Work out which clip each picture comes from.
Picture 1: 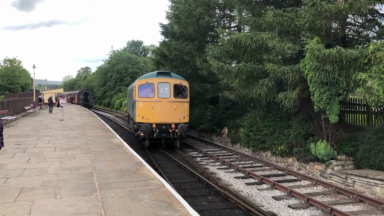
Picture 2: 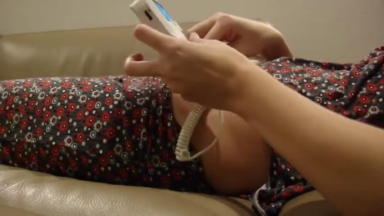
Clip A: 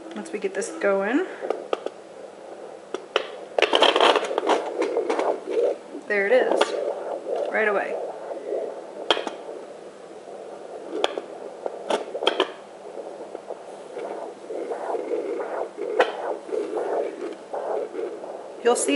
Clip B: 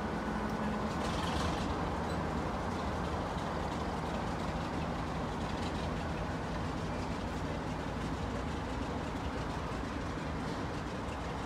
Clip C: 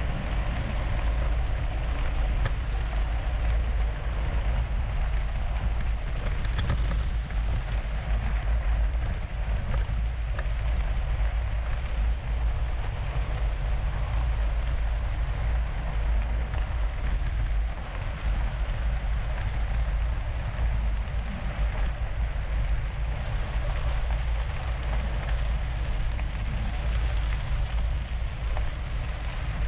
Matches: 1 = B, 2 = A